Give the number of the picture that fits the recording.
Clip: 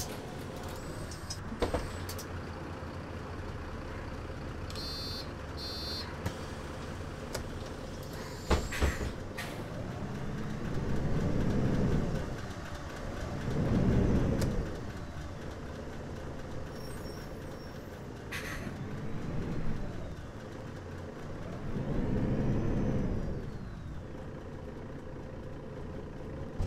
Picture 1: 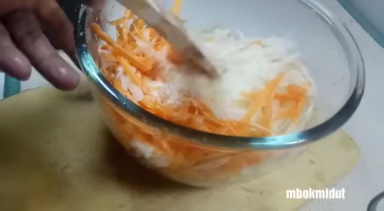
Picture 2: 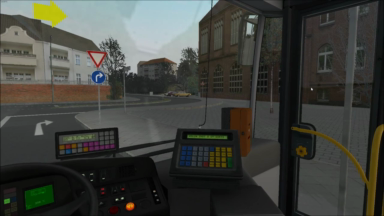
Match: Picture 2